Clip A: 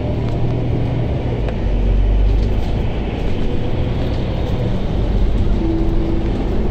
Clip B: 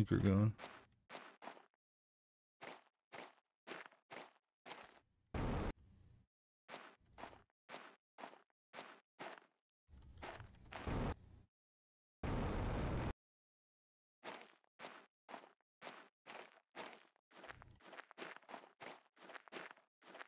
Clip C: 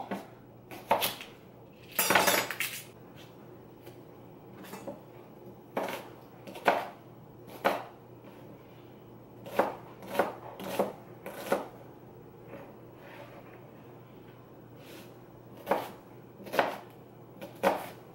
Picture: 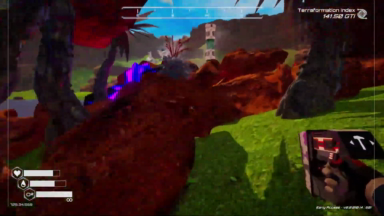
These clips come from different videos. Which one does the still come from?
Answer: B